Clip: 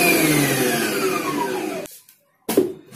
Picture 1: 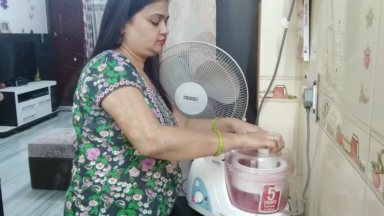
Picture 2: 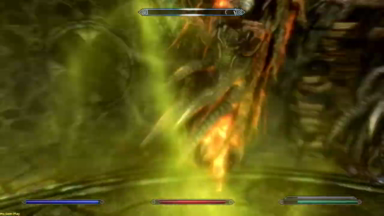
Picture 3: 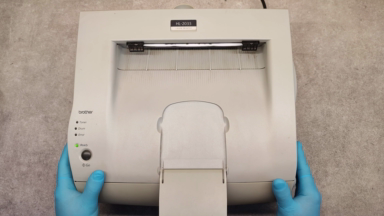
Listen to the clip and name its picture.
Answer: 1